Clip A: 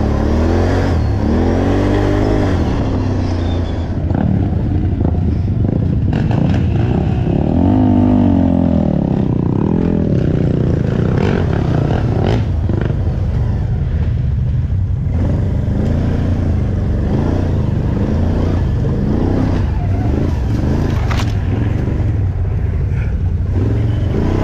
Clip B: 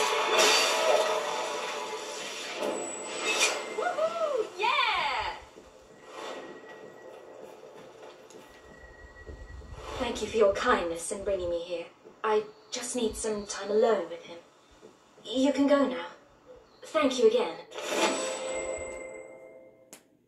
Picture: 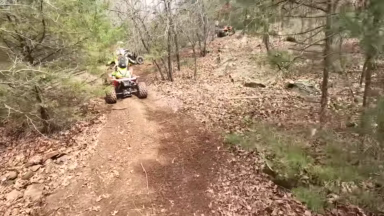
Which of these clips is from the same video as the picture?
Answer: A